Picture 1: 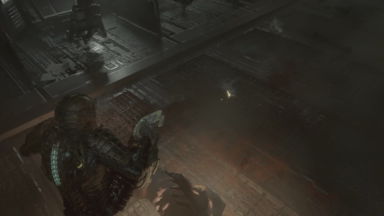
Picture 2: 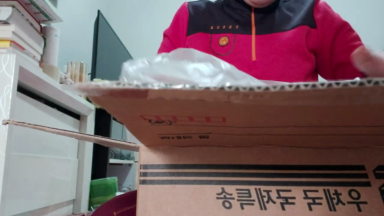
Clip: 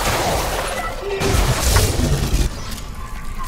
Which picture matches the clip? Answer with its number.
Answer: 1